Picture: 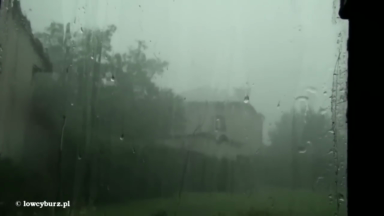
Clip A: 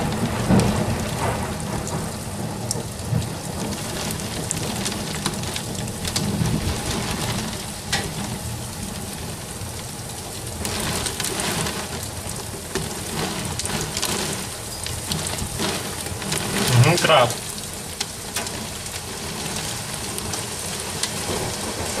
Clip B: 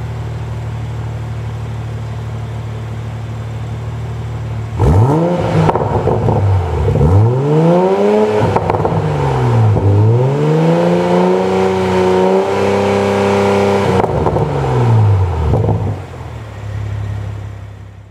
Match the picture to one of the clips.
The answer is A